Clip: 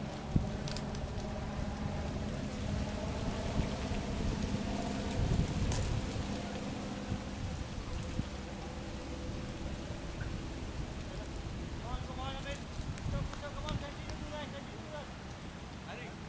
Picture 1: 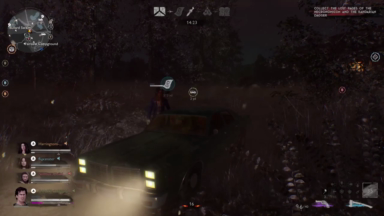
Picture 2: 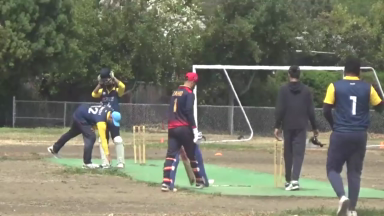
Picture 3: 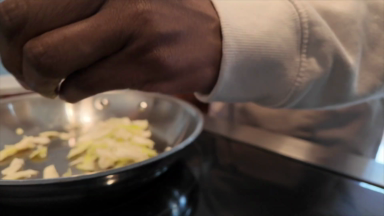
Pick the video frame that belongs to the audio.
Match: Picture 2